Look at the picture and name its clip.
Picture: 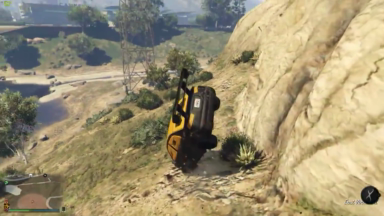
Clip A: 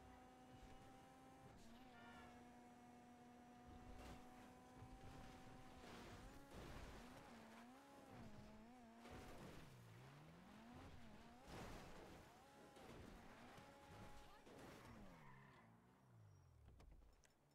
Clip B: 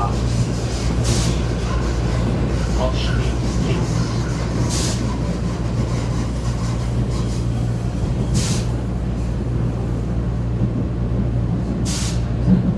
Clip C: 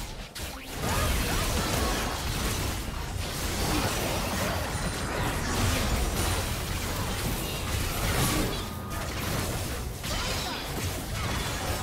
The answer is A